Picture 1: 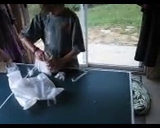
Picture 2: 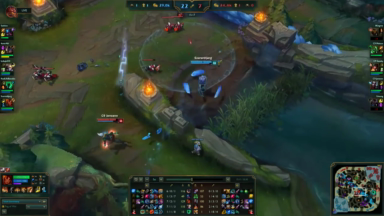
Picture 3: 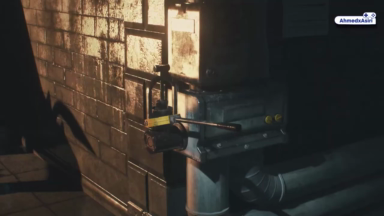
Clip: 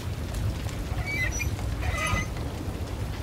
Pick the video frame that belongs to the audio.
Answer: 3